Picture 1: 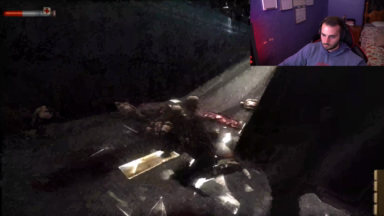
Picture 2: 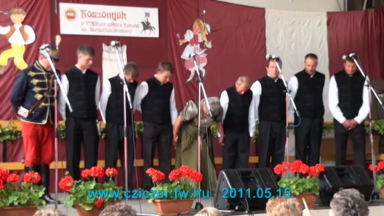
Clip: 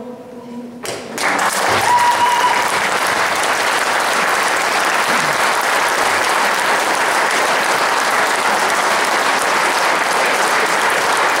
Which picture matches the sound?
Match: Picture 2